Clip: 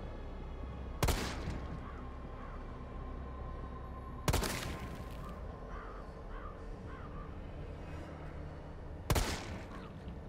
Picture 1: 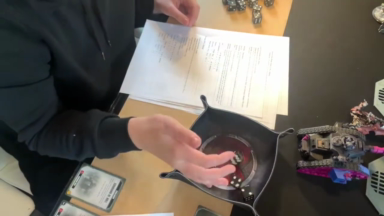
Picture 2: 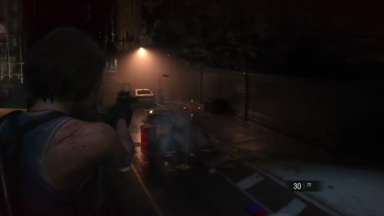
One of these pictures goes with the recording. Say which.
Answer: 2